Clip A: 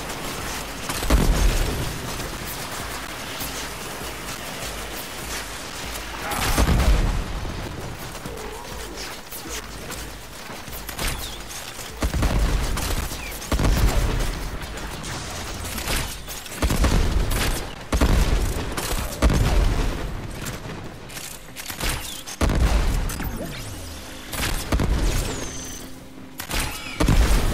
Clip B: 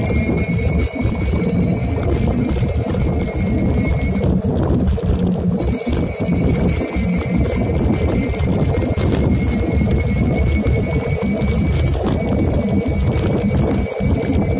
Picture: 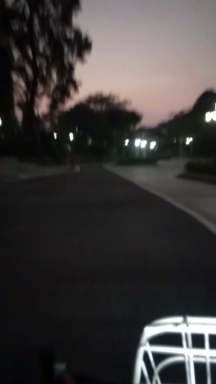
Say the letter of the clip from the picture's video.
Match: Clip B